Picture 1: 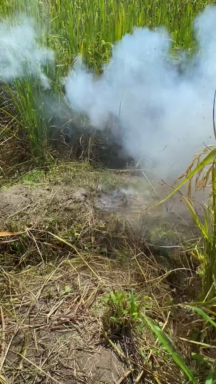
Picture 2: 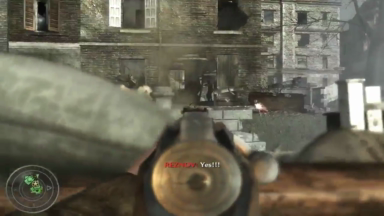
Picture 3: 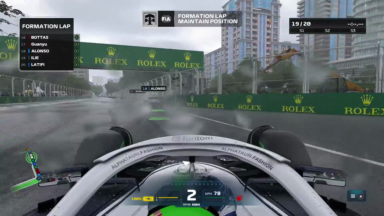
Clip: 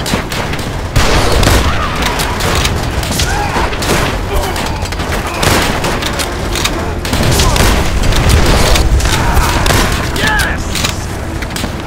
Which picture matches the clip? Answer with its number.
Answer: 2